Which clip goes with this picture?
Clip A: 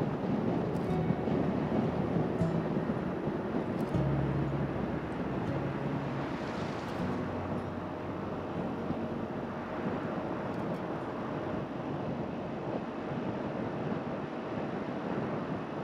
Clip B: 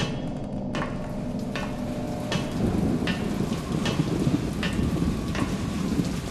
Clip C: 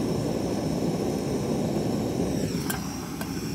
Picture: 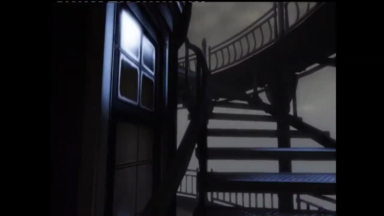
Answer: B